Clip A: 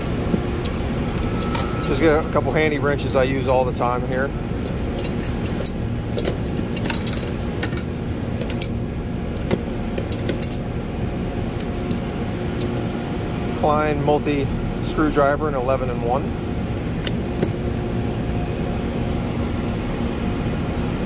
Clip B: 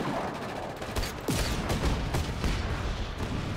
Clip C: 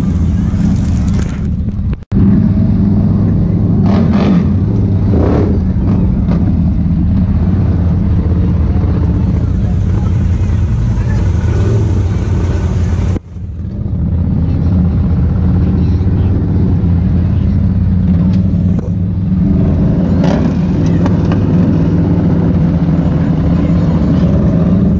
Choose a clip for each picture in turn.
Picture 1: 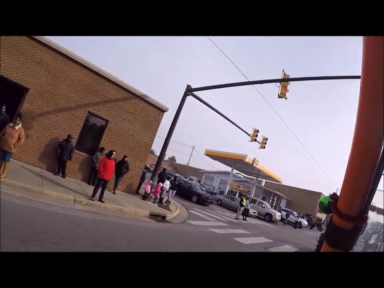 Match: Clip C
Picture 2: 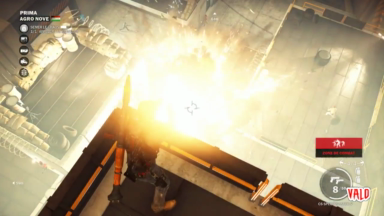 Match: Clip B